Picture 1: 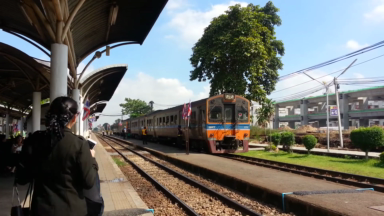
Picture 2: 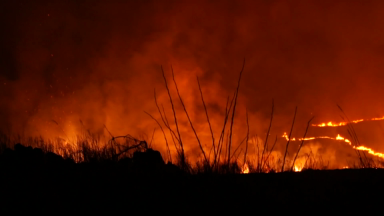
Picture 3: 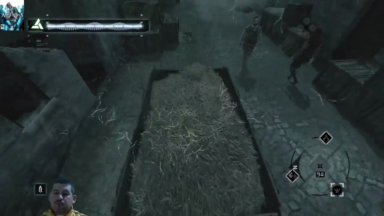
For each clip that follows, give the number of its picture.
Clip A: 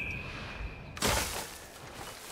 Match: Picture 3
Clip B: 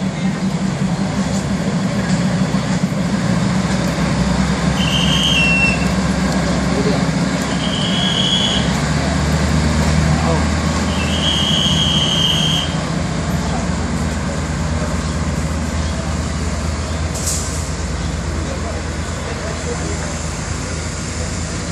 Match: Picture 1